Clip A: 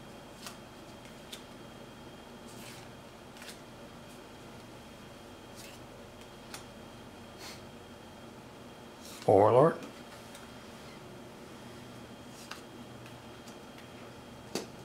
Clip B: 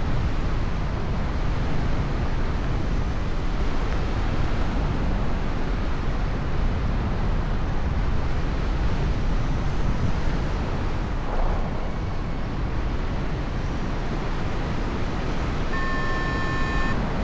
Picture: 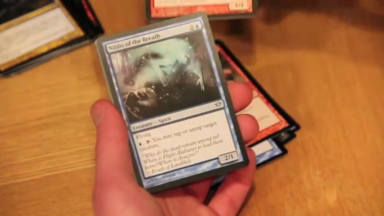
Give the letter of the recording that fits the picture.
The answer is A